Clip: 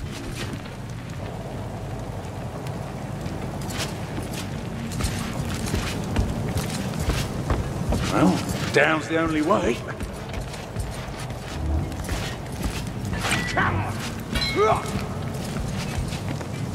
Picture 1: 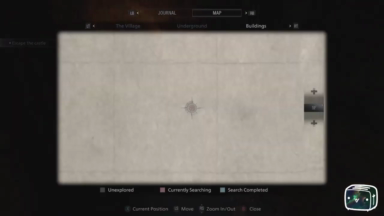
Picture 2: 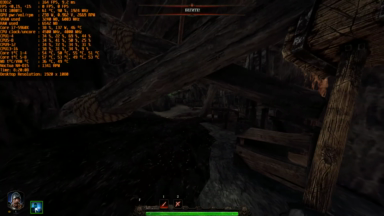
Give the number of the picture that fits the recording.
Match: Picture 2